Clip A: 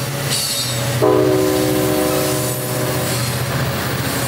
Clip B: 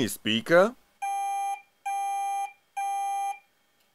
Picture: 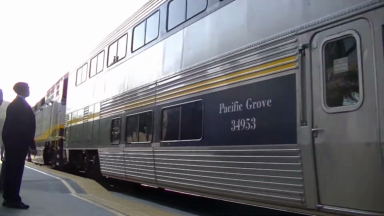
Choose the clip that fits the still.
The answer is A